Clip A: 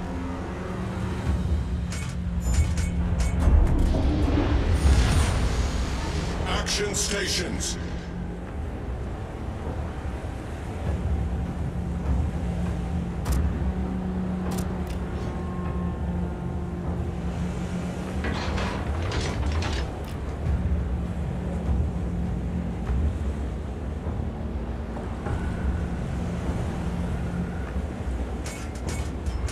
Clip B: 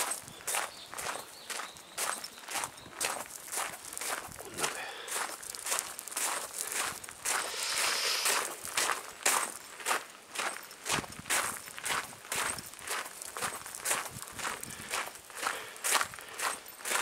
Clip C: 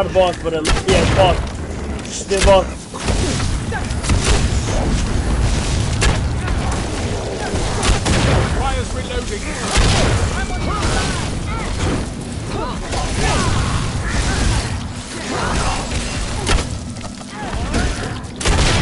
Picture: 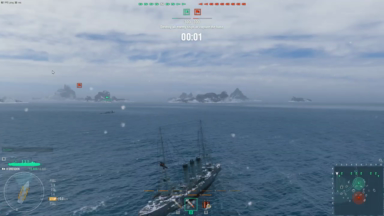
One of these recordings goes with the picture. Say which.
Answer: A